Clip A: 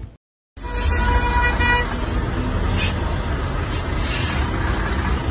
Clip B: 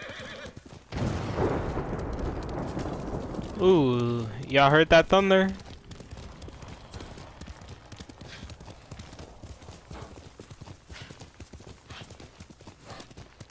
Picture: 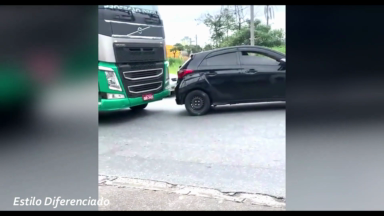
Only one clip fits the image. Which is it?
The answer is A